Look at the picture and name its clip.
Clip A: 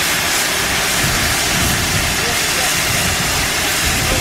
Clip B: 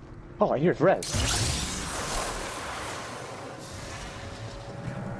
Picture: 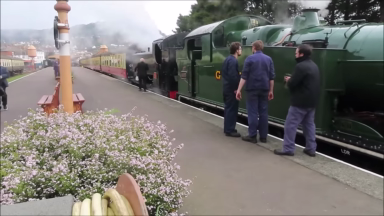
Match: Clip A